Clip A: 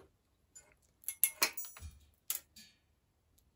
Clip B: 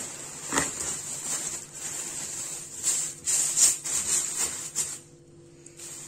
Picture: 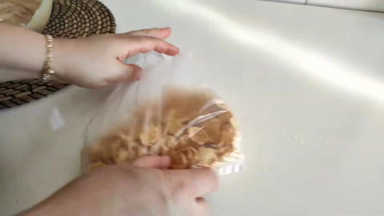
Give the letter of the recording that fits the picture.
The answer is B